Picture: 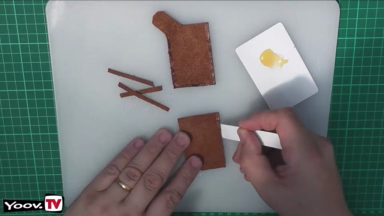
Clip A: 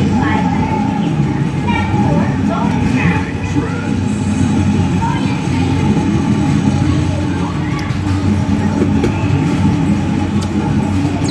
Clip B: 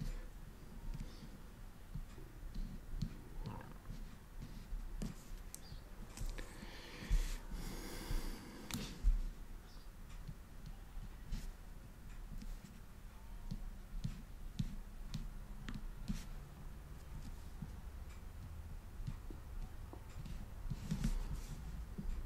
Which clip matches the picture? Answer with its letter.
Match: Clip B